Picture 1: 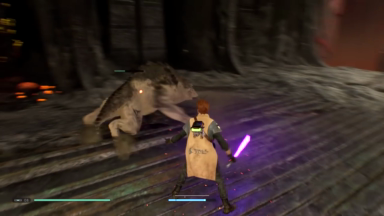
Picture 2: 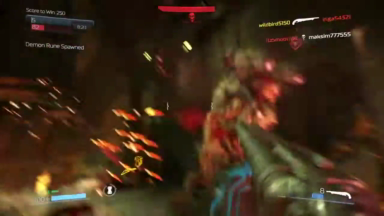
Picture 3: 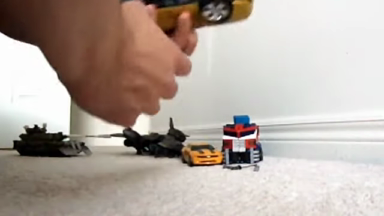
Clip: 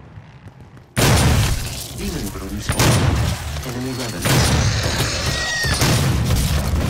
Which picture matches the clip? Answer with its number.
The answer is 2